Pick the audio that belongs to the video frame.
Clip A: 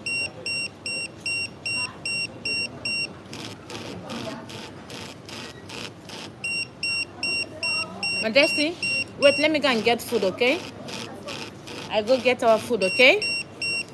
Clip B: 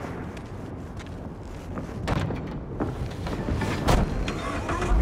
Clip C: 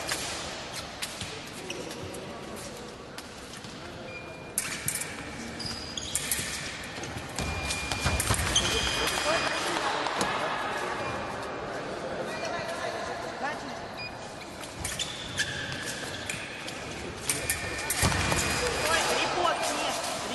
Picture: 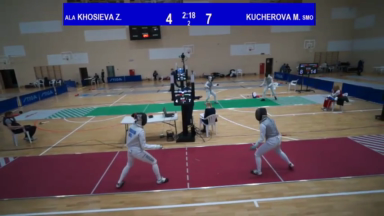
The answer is C